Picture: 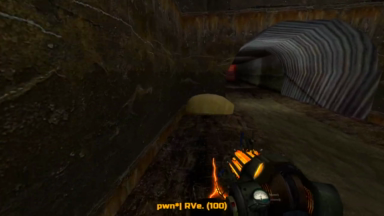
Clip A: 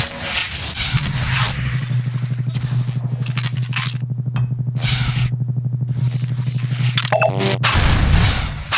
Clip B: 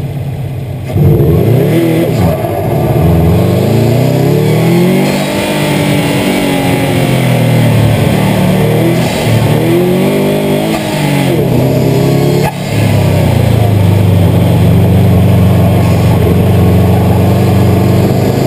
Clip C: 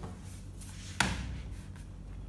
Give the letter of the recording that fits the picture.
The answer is A